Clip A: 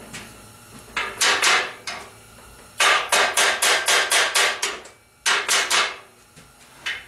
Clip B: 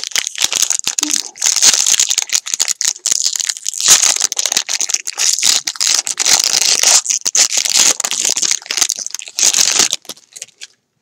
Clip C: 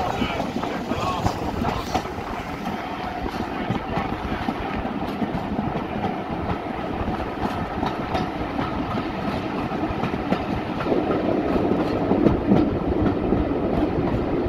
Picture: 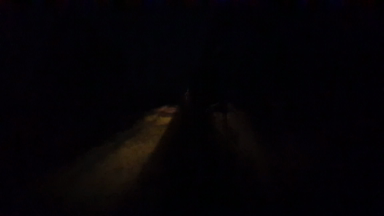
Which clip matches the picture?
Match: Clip C